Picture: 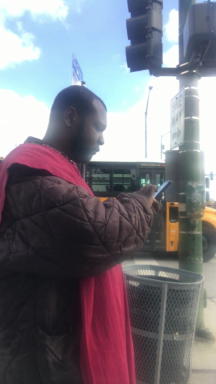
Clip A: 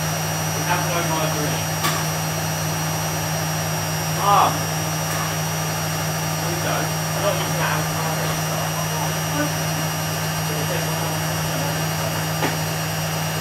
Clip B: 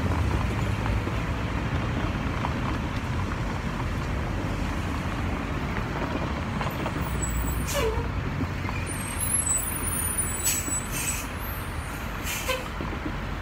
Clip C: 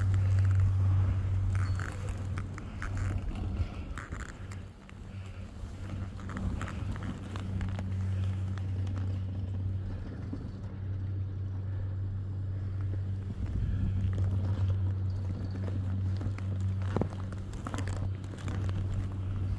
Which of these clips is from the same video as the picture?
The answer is B